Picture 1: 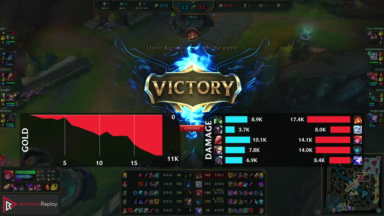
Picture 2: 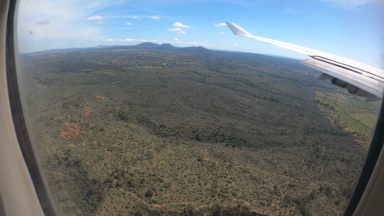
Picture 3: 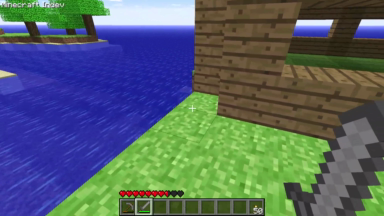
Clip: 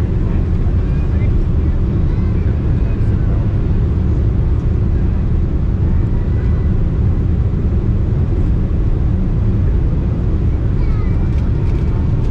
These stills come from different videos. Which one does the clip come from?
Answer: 2